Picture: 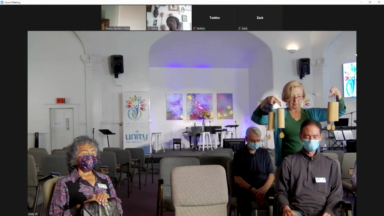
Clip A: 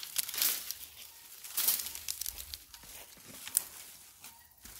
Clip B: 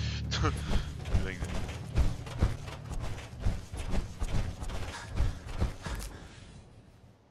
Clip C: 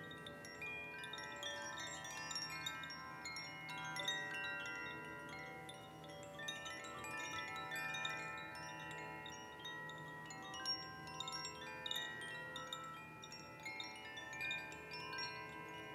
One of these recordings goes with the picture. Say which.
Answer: C